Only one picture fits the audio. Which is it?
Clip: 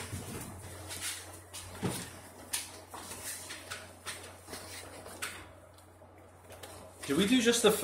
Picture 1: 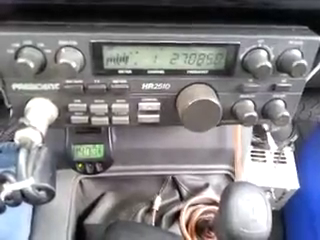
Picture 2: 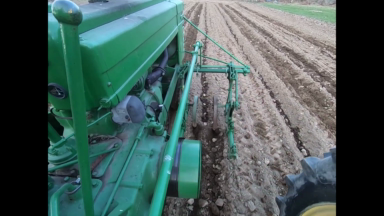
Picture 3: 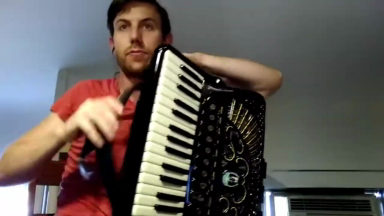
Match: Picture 3